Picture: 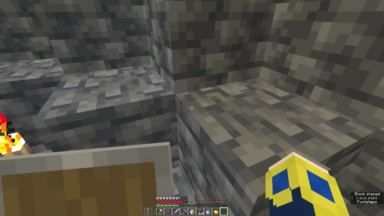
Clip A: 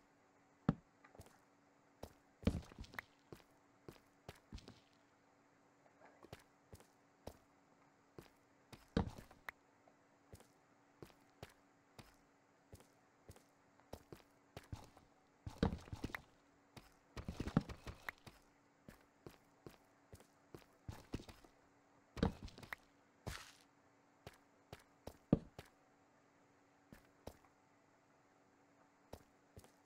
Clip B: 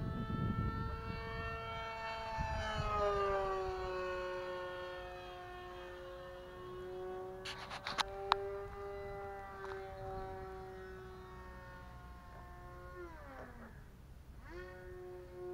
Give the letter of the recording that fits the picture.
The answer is A